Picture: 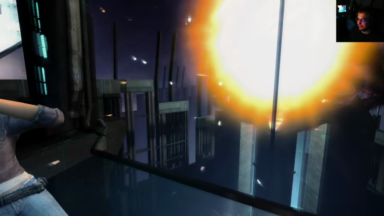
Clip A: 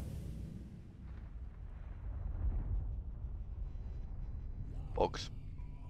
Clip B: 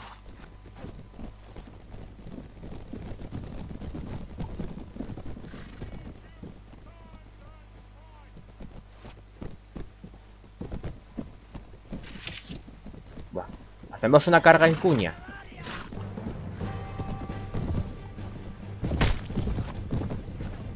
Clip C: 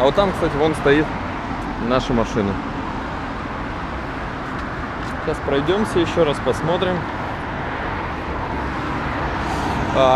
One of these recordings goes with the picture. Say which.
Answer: A